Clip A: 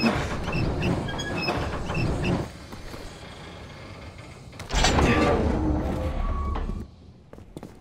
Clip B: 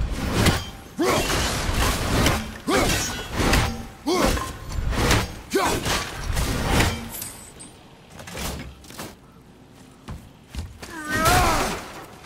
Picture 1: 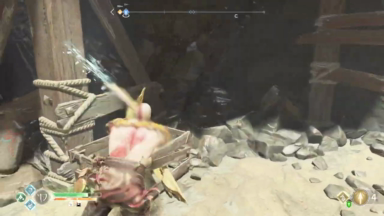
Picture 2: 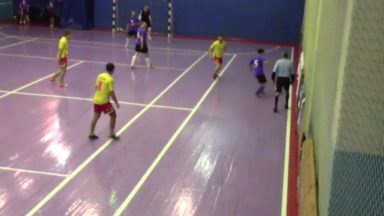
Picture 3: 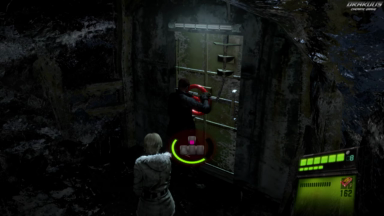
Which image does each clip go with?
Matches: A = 3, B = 1